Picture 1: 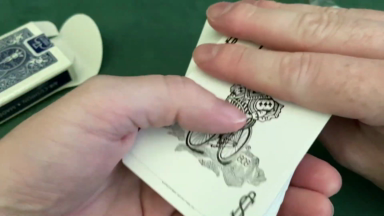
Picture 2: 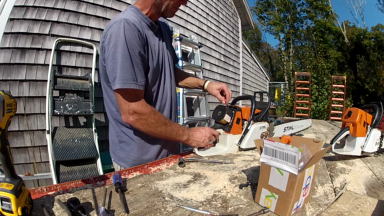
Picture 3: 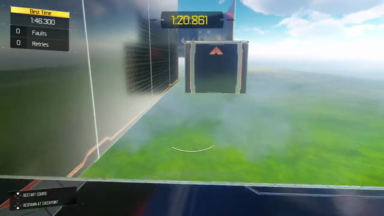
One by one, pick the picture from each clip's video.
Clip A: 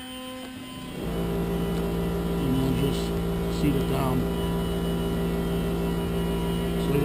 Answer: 2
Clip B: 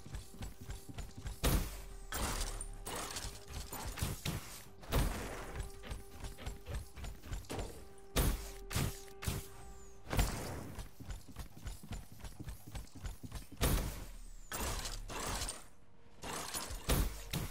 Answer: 3